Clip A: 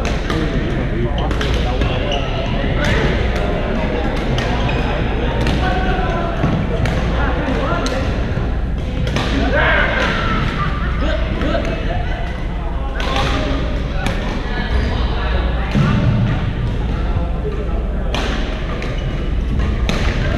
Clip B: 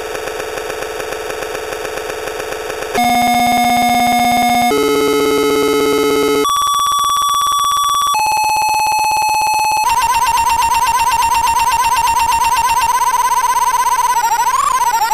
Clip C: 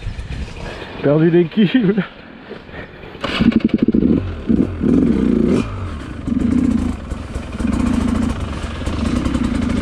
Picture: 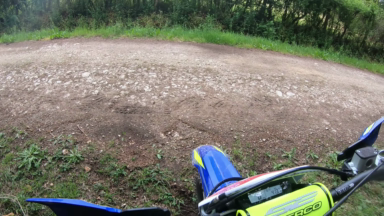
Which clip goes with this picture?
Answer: C